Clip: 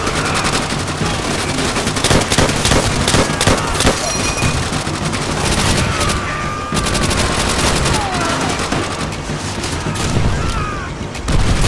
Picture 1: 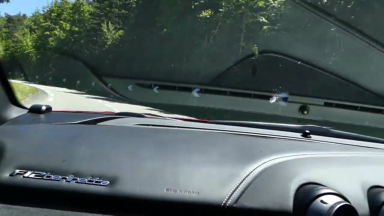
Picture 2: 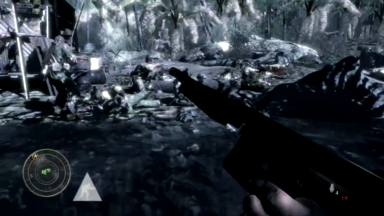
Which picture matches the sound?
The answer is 2